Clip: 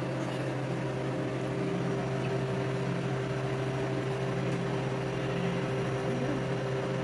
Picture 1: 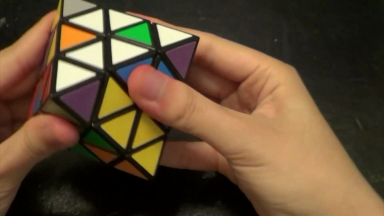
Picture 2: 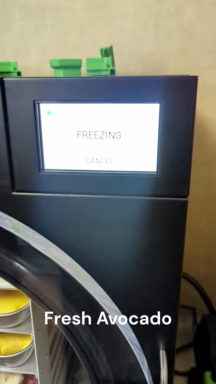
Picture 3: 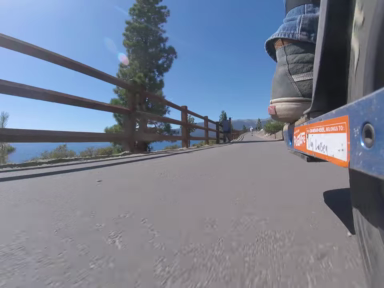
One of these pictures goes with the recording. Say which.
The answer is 2